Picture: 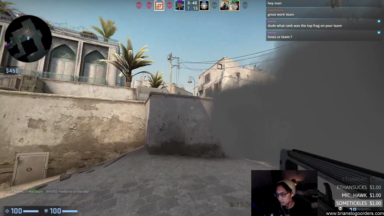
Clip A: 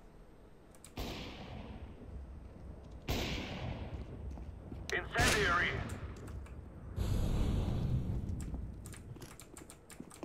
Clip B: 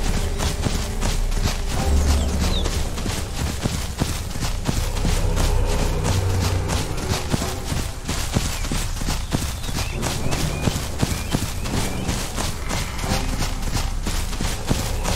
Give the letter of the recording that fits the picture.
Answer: A